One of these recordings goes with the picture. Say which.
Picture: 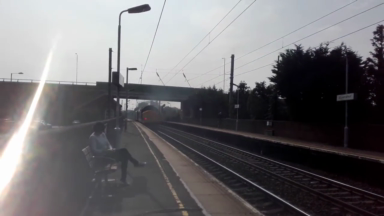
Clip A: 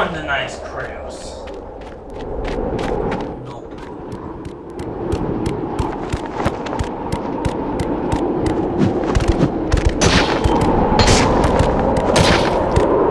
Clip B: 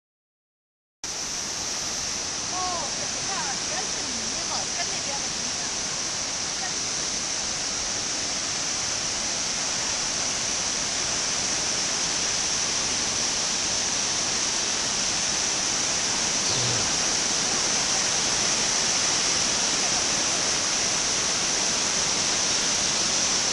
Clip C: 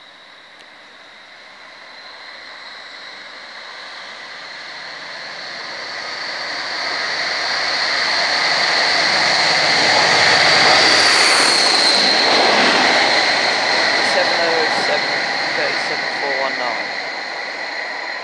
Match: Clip C